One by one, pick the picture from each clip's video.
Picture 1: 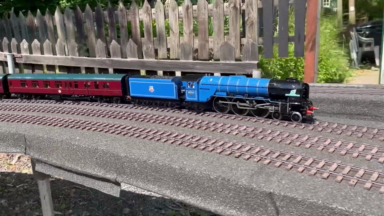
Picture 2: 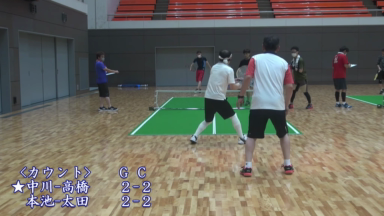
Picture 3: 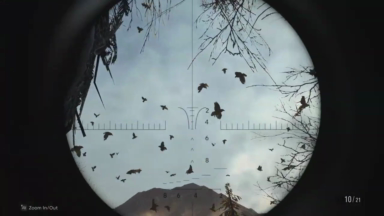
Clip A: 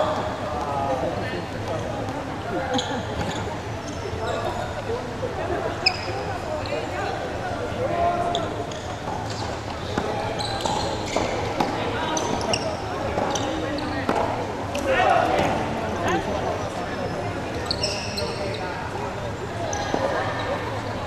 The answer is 2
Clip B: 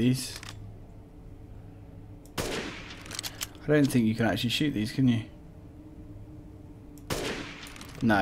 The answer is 3